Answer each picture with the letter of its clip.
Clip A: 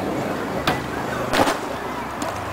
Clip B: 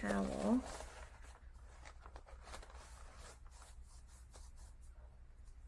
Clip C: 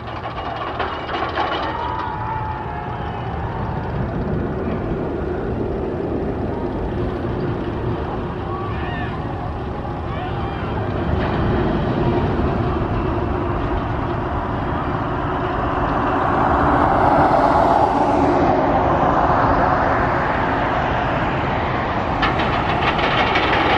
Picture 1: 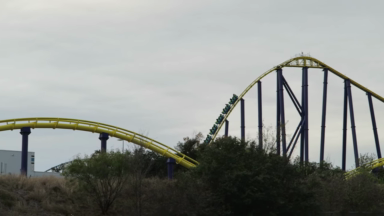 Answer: C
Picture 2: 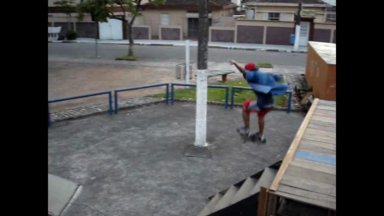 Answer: A